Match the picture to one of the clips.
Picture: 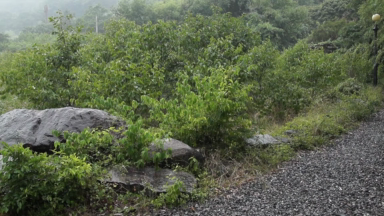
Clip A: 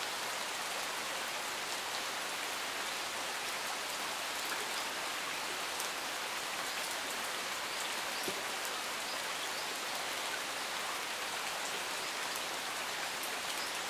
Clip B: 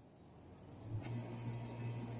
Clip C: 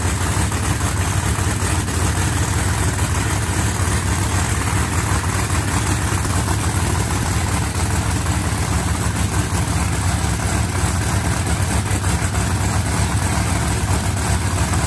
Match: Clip A